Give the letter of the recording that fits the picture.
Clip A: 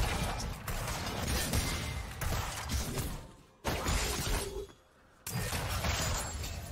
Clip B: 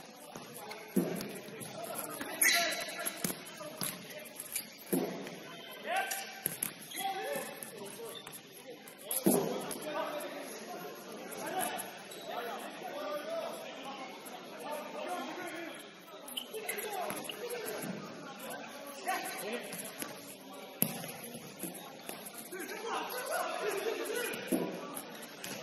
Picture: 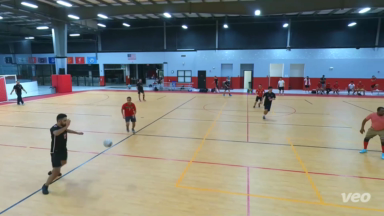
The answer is B